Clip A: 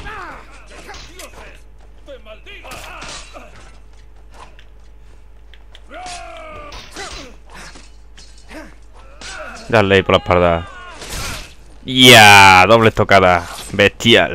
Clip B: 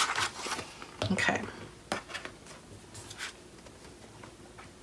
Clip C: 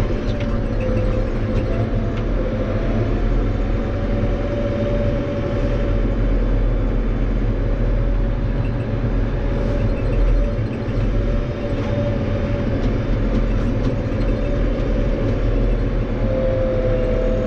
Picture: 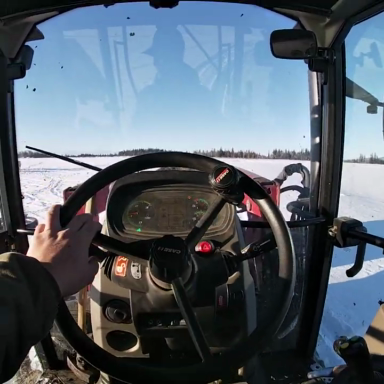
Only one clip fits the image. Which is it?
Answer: C